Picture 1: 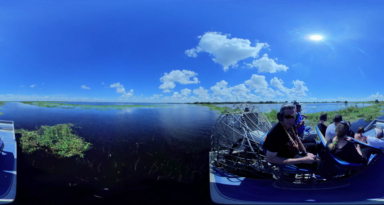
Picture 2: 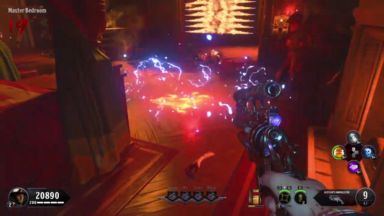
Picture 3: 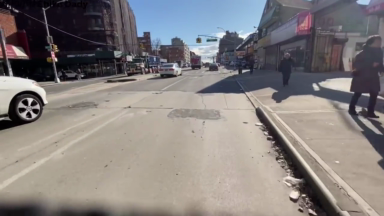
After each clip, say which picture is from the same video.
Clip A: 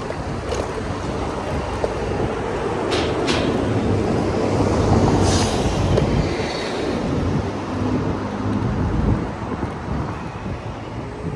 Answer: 3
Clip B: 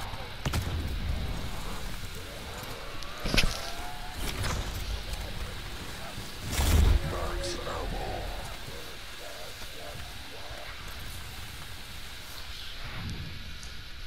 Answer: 2